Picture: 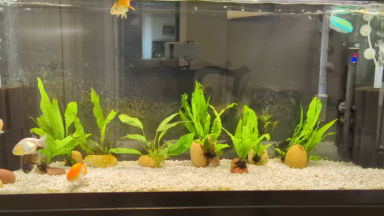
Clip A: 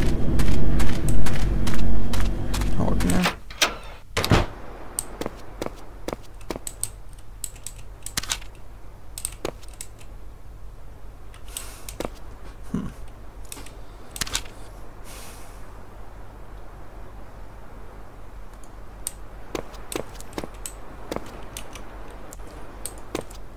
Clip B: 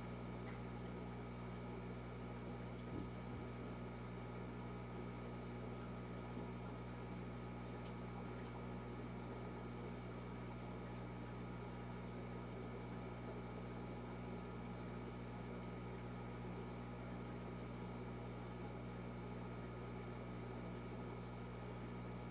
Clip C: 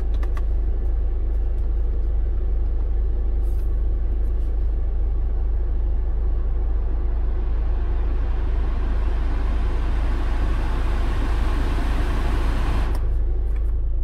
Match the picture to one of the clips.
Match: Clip B